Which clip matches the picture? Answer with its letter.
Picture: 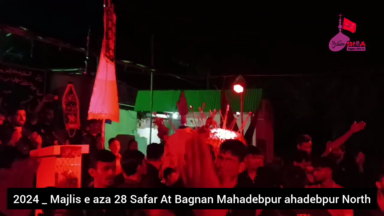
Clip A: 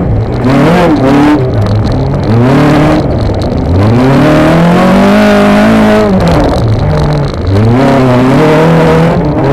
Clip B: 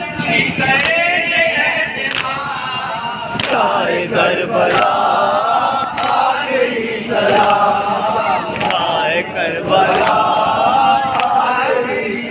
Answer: B